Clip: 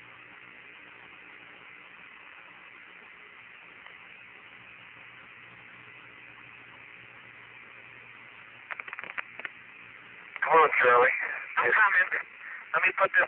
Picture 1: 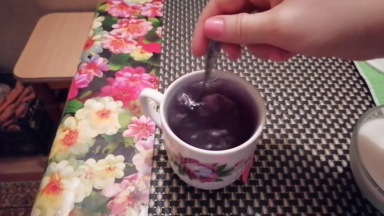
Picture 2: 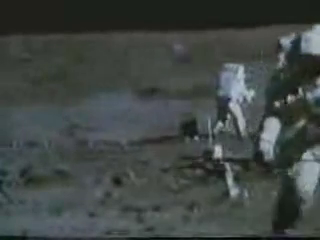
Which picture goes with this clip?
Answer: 2